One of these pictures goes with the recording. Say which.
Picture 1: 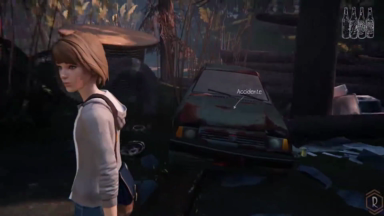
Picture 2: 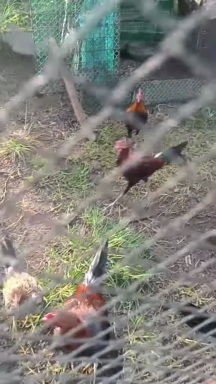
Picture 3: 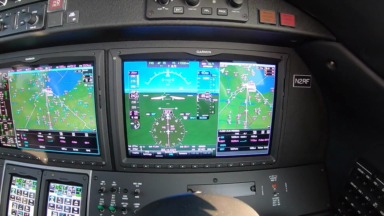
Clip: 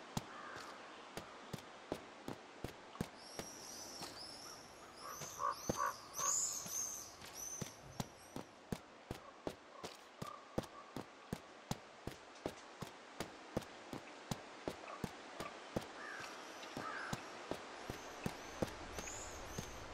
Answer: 1